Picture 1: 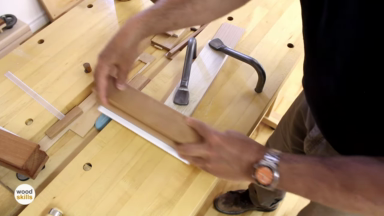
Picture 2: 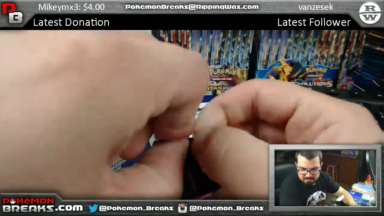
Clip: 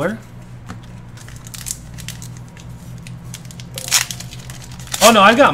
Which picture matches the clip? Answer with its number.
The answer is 2